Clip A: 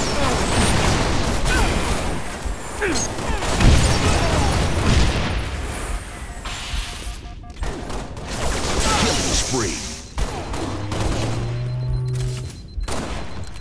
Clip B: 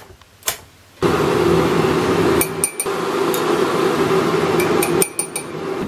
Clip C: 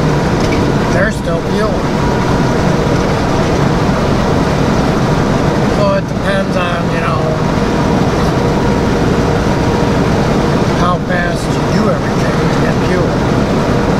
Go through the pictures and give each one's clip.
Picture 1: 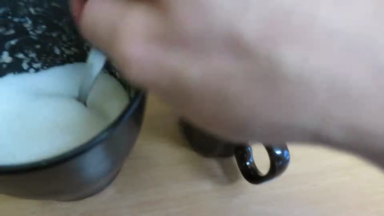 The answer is B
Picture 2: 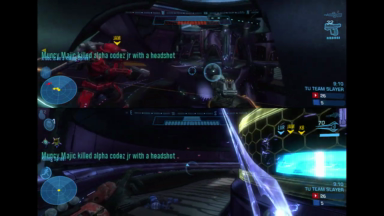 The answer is A